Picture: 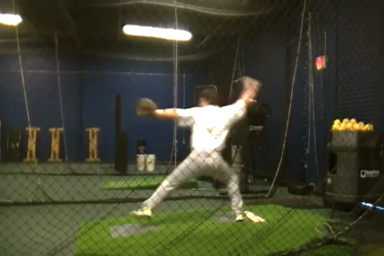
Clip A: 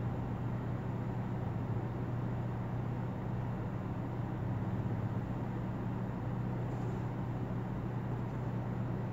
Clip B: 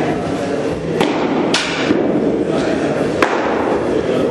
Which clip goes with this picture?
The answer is B